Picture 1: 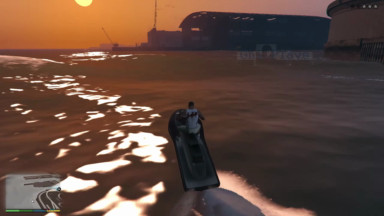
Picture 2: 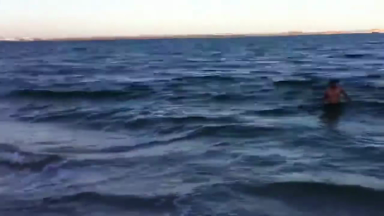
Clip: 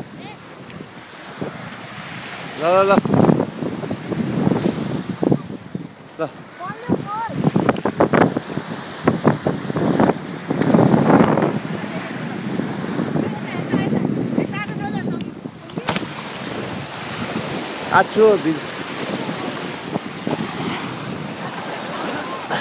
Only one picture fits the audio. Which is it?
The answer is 2